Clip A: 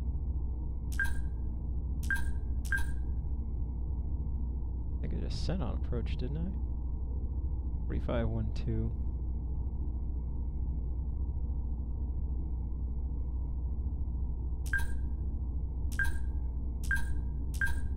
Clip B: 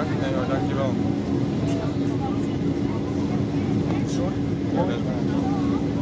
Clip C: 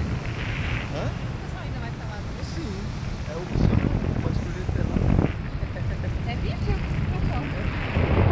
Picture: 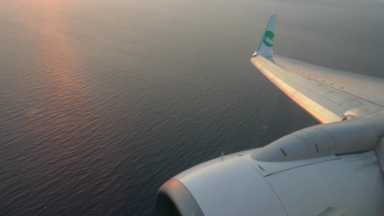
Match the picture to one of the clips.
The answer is B